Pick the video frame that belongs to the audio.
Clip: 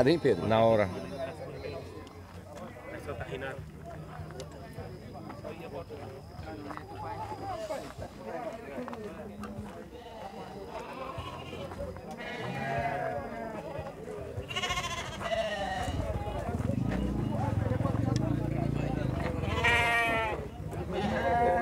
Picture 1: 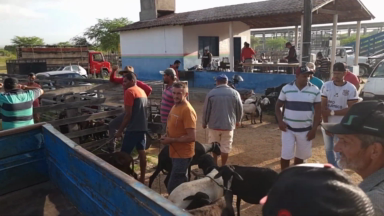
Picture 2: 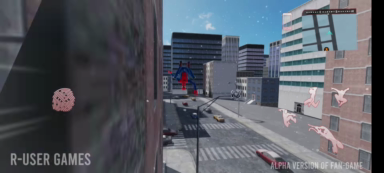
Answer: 1